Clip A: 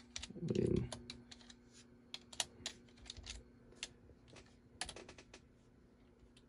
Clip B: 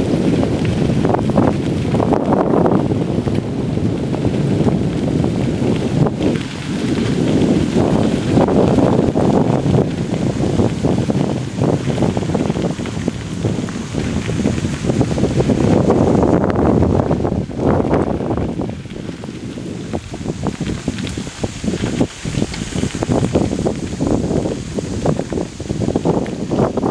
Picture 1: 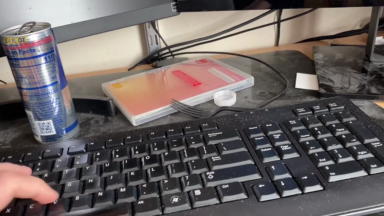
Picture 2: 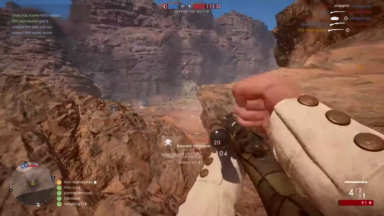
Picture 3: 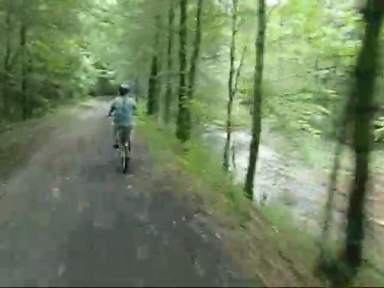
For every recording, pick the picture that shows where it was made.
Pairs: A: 1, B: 3